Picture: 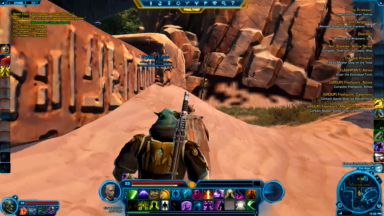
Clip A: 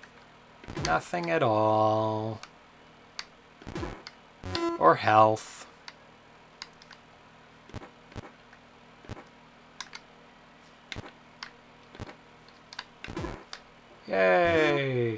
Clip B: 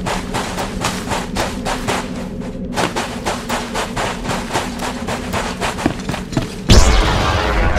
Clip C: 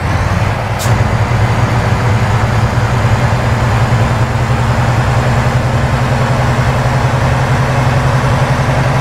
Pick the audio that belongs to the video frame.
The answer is B